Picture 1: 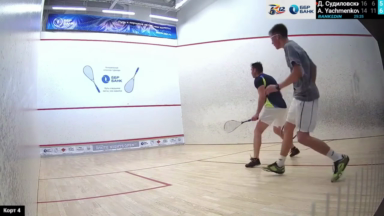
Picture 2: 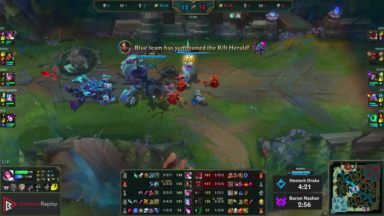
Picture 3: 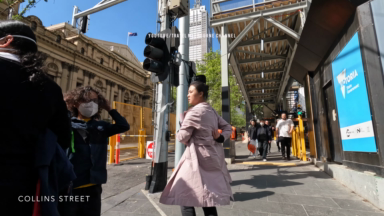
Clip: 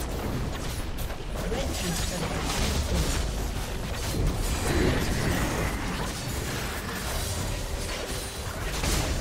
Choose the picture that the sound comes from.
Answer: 2